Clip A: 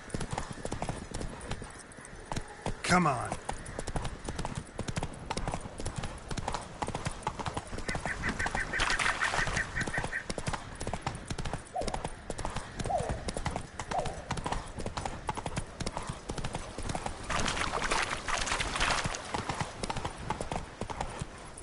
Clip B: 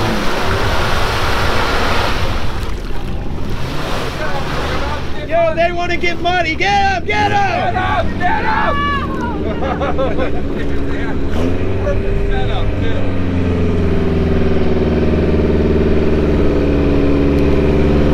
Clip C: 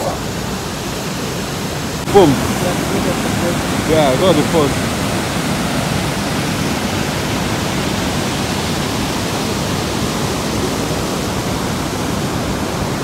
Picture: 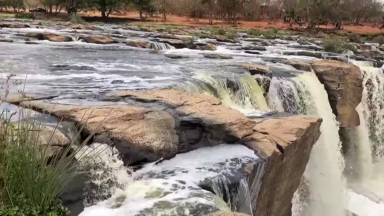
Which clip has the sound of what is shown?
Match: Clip C